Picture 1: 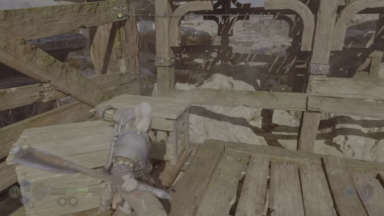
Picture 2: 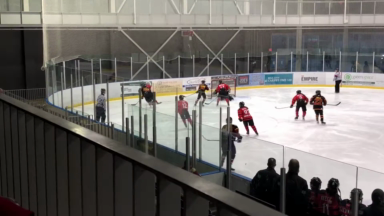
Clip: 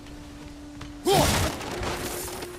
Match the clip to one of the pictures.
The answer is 1